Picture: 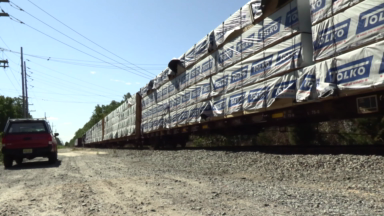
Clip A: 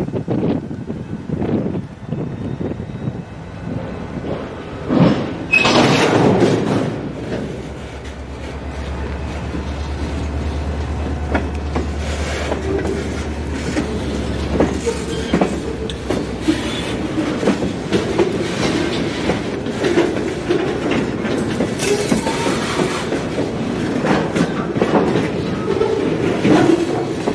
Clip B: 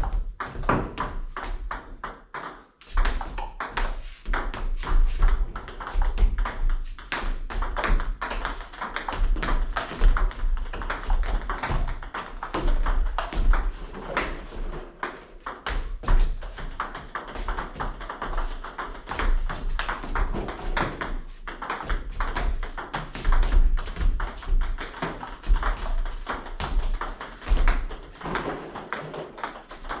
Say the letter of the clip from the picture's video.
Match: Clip A